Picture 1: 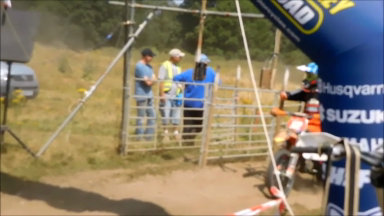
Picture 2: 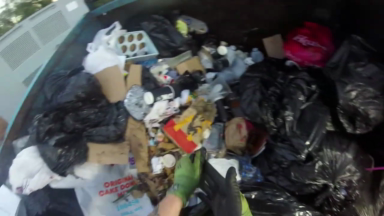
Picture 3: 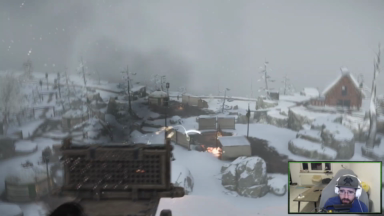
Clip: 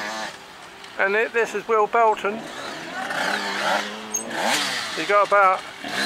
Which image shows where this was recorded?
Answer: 1